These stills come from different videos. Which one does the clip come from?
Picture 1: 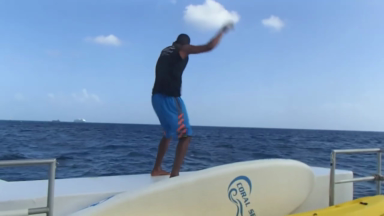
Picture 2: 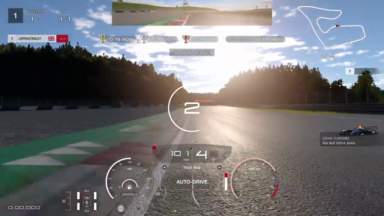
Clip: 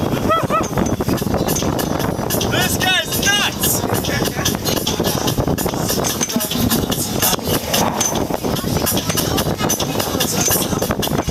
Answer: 1